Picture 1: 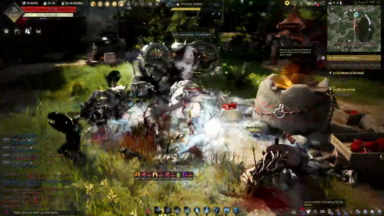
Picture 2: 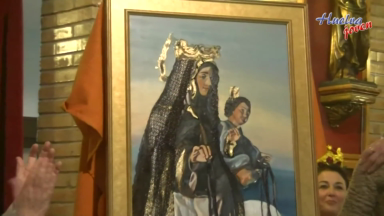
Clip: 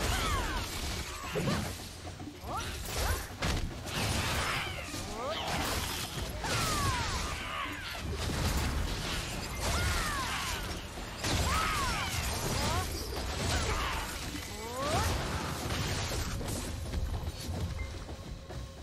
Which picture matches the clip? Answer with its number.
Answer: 1